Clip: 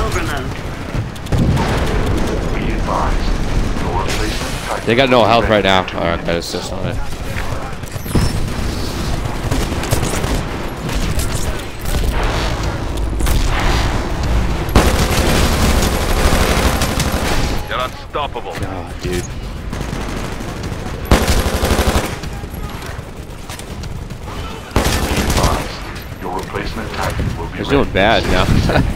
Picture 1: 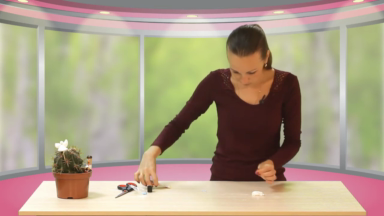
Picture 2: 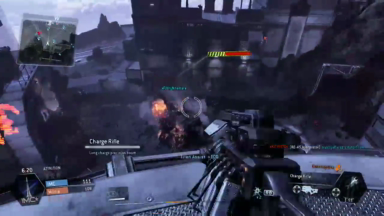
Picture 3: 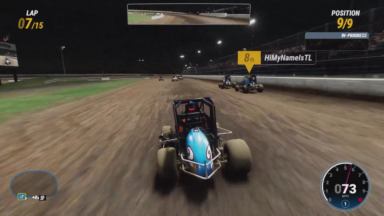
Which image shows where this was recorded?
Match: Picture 2